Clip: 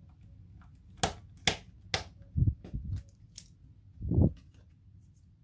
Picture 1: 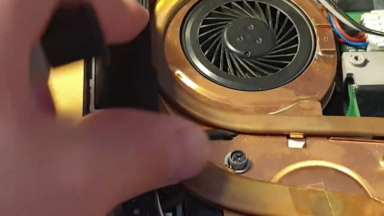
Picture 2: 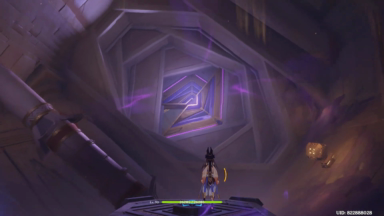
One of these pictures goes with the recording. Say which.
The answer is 1